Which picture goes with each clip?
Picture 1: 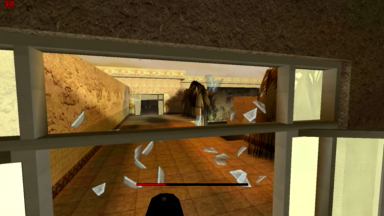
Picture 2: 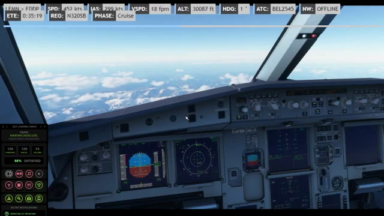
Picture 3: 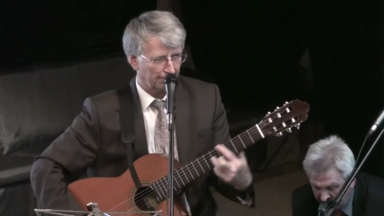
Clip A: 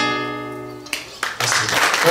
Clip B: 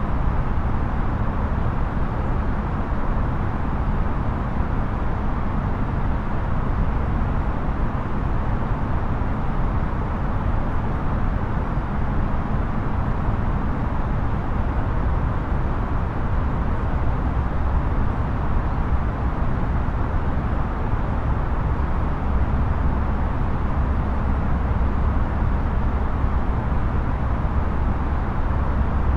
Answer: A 3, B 2